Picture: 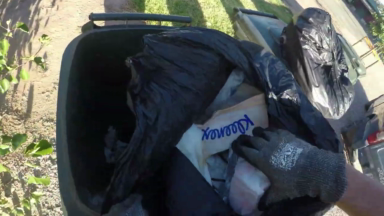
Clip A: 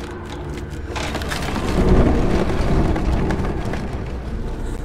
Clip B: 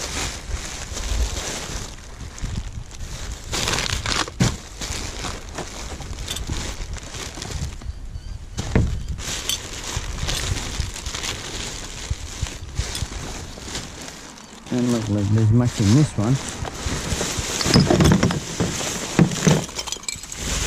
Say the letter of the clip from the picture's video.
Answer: B